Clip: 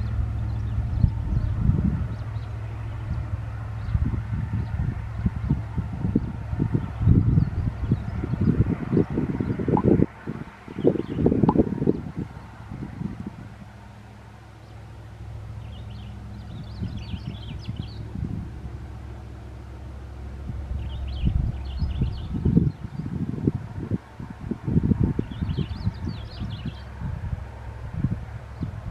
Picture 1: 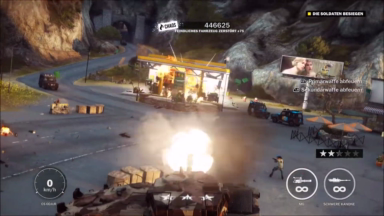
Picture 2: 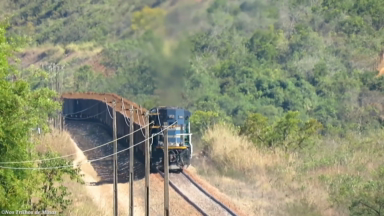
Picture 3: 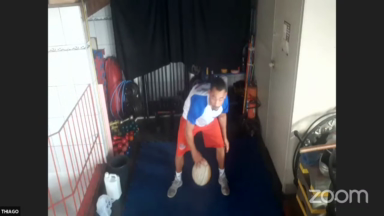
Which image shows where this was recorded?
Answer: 2